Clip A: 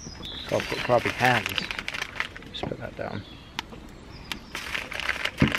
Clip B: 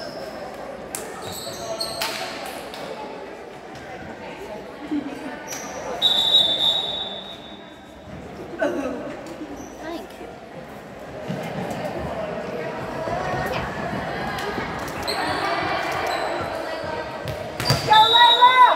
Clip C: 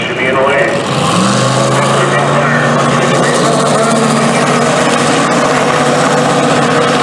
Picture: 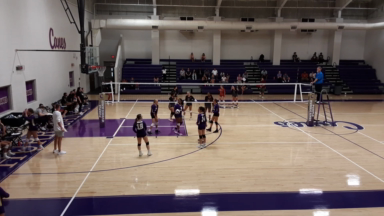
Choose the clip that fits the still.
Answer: B